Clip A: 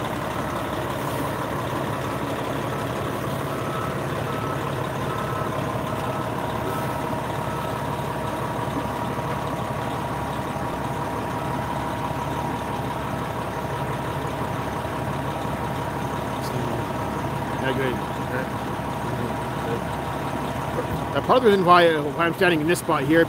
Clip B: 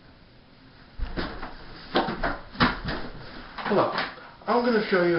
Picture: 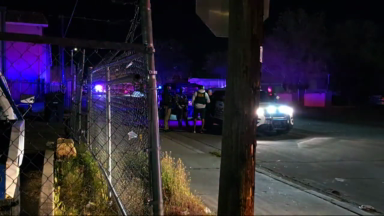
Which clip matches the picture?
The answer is A